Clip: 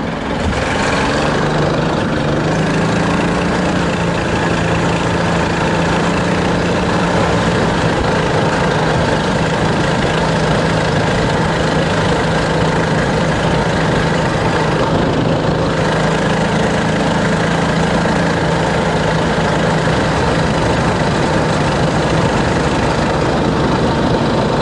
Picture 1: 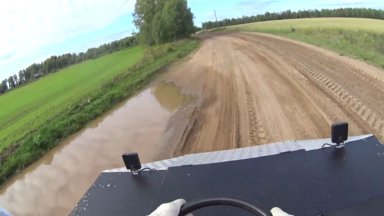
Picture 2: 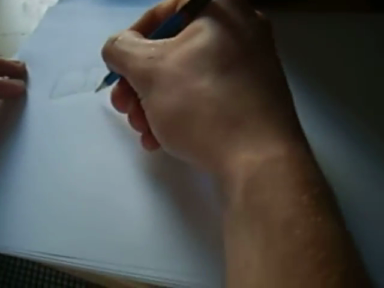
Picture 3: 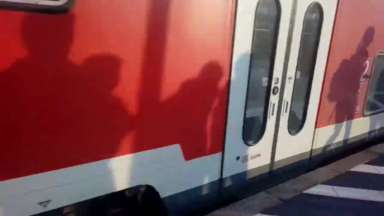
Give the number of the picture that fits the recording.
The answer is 1